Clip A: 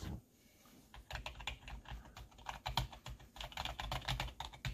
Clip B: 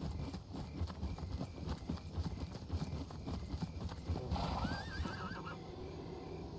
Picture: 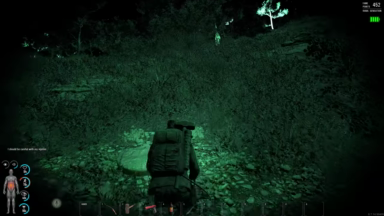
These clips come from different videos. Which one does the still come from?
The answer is B